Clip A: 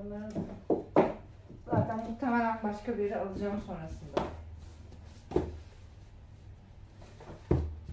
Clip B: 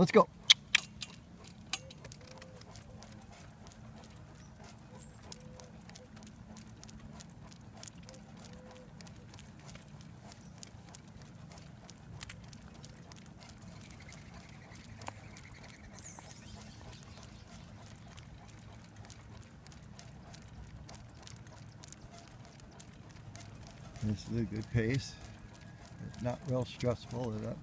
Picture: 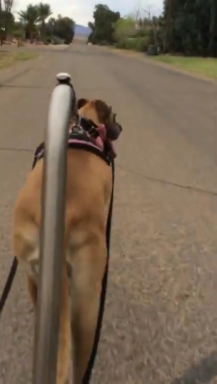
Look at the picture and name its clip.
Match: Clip B